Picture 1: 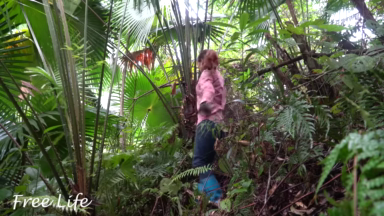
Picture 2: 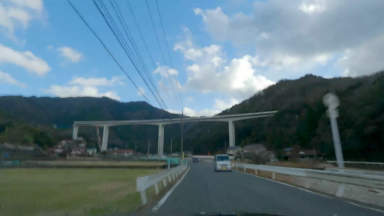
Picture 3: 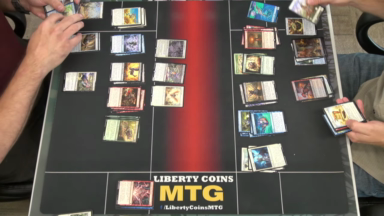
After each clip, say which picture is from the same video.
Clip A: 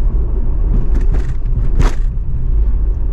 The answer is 2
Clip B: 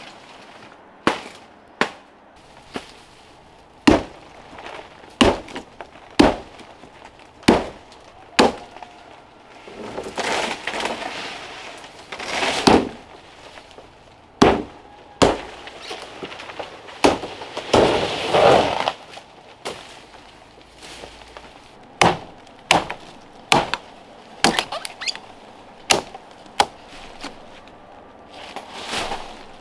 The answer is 1